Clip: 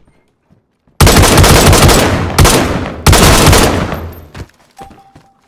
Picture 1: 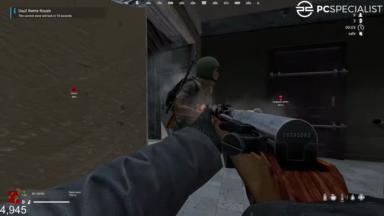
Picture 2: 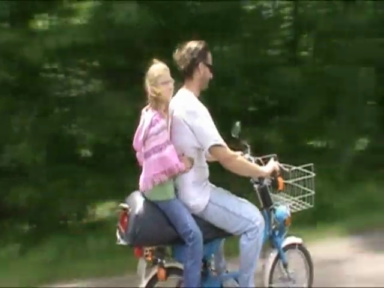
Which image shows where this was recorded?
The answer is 1